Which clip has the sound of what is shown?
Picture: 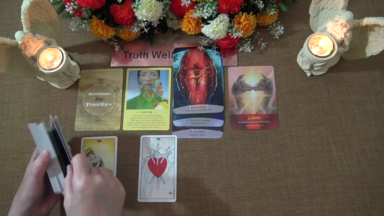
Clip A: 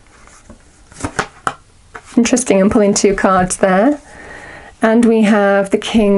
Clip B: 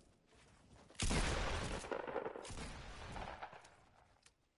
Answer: A